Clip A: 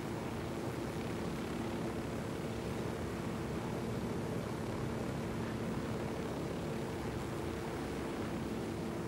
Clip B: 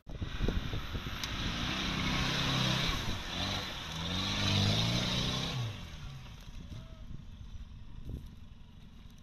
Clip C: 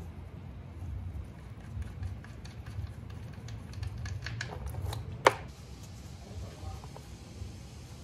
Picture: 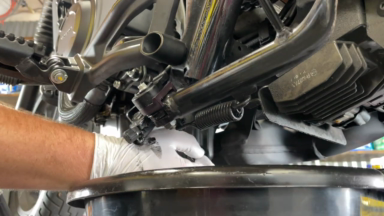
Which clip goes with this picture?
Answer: C